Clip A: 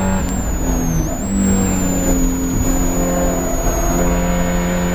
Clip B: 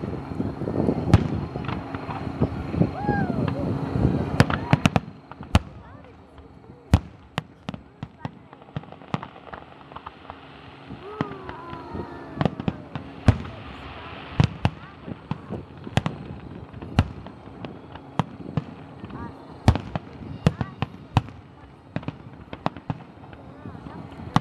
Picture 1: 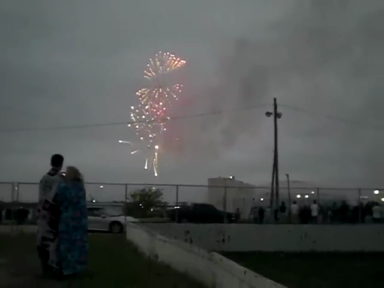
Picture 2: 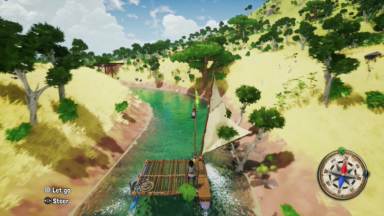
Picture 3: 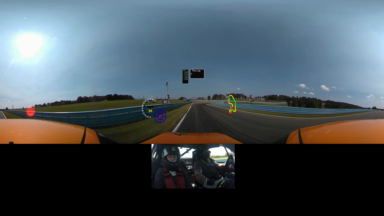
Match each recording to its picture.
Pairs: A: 3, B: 1